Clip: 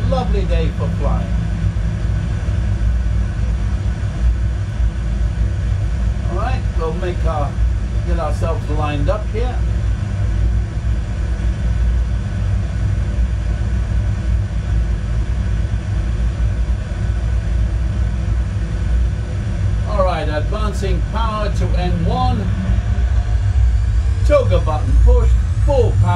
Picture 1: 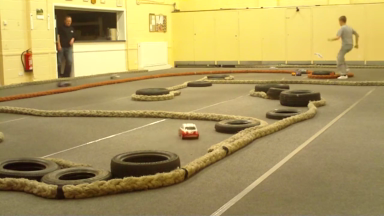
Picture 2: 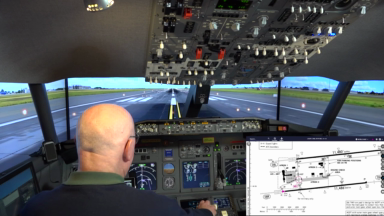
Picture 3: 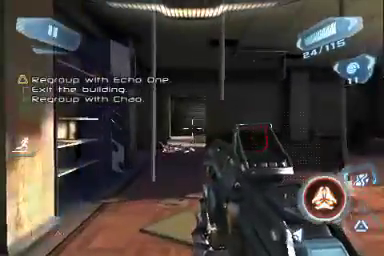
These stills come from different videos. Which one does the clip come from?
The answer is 2